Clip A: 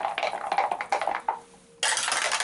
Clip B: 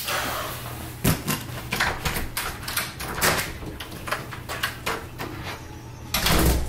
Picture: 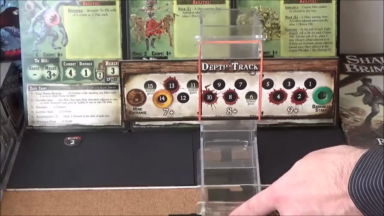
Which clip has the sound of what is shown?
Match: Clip A